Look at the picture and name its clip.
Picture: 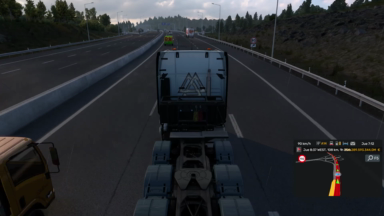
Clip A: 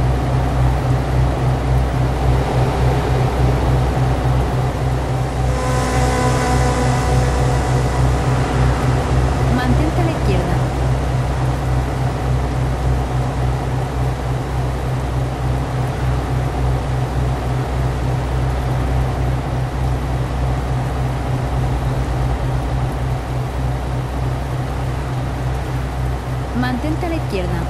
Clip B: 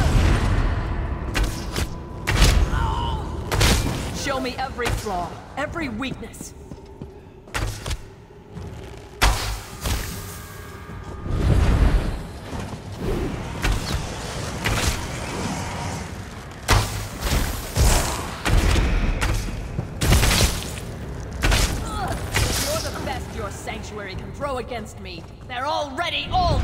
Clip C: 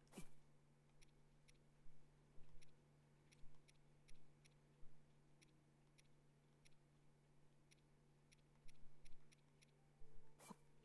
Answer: A